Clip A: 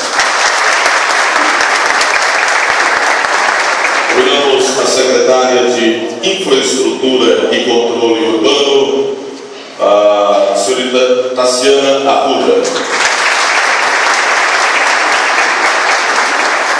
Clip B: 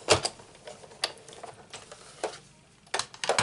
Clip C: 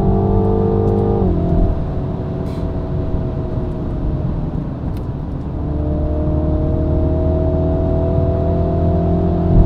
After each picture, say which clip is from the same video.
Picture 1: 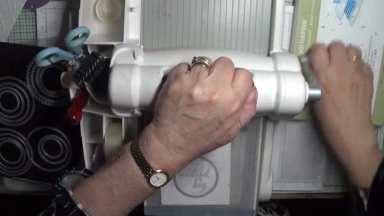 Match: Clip B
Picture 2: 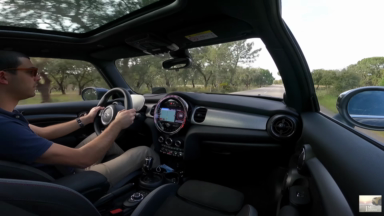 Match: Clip C